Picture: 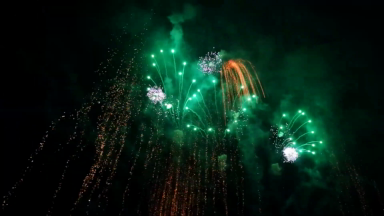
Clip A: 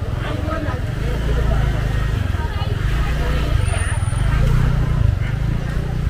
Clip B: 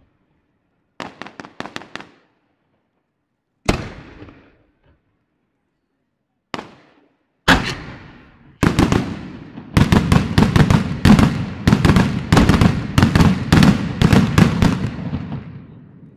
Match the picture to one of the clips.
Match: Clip B